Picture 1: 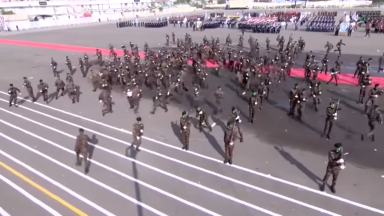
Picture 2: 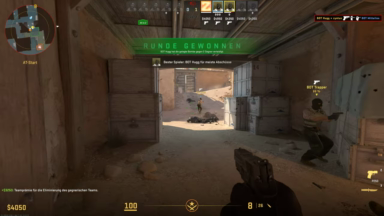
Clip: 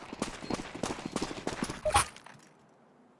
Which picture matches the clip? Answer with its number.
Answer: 2